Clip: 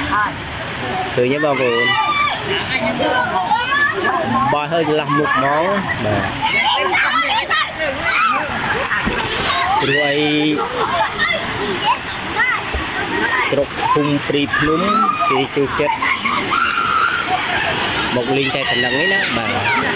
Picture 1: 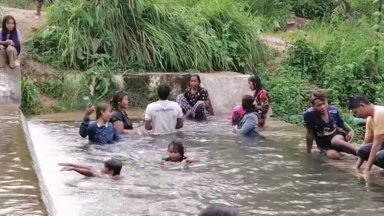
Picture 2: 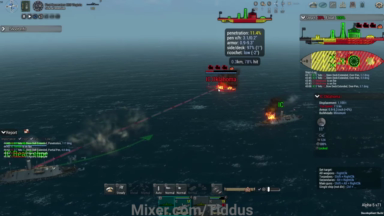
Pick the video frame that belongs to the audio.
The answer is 1